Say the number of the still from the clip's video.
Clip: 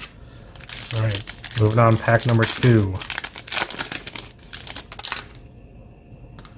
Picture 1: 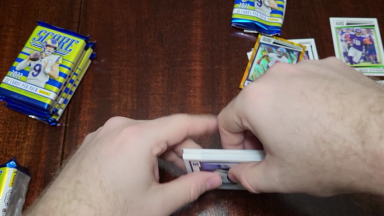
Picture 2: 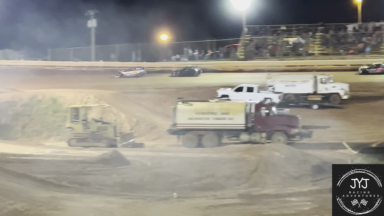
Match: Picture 1